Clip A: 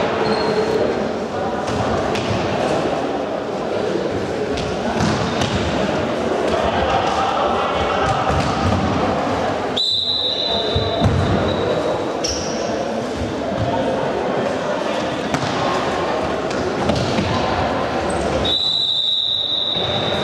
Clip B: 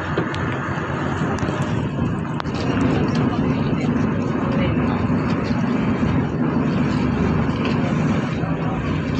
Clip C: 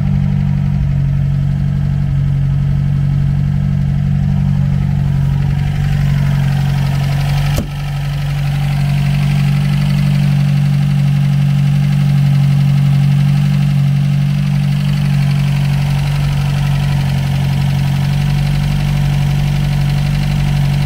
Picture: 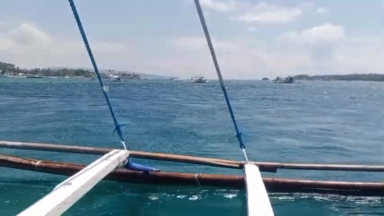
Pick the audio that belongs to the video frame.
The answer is B